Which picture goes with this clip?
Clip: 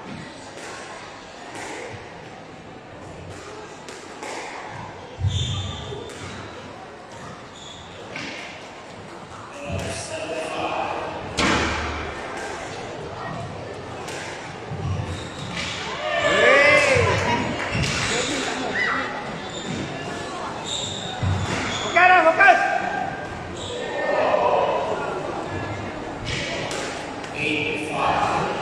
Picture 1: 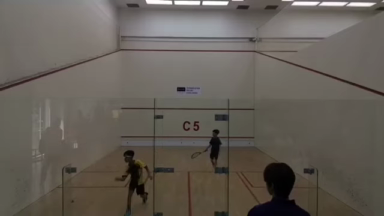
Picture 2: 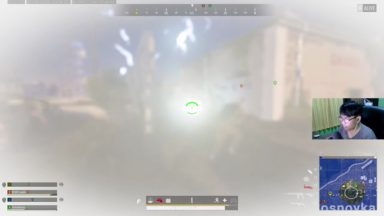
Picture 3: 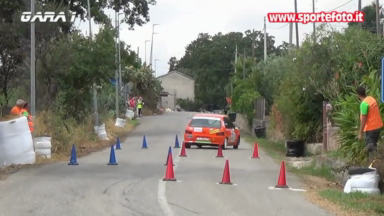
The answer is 1